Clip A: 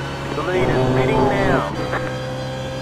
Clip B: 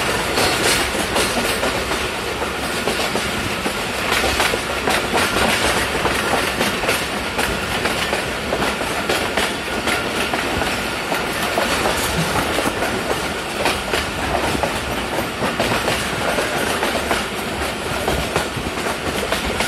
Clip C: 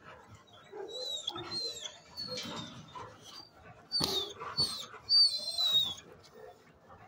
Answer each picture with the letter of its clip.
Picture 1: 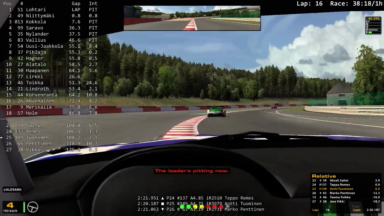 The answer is A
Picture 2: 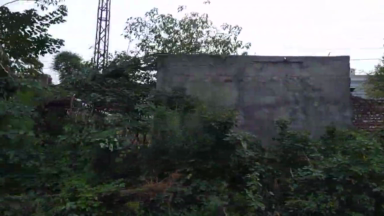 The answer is B